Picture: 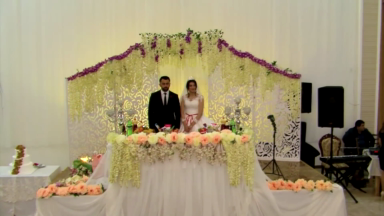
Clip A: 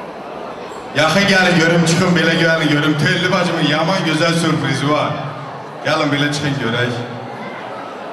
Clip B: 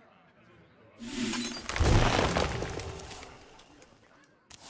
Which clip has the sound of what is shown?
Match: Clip A